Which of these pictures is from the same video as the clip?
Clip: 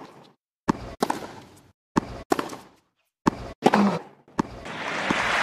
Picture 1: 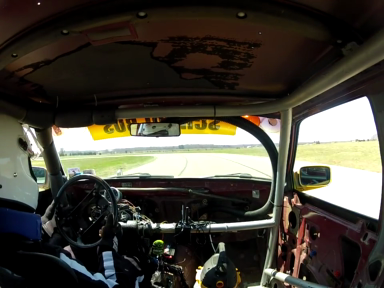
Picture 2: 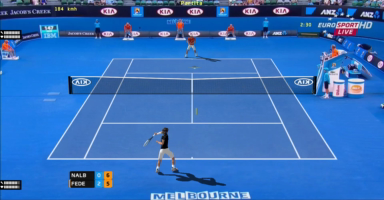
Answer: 2